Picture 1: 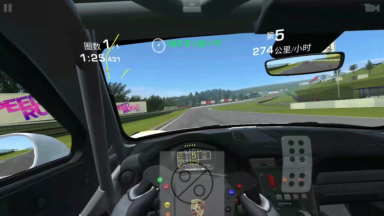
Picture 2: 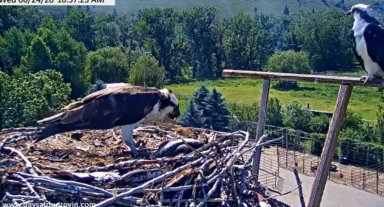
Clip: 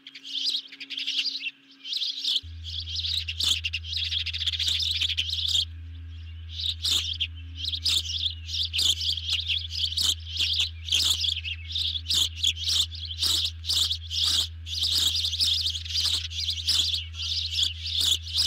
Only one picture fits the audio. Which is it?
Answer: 2